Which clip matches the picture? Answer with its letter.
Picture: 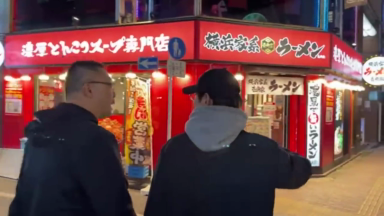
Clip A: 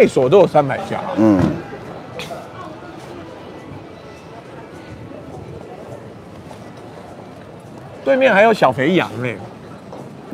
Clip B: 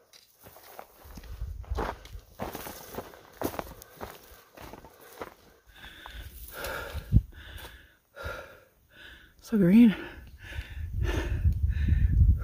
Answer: A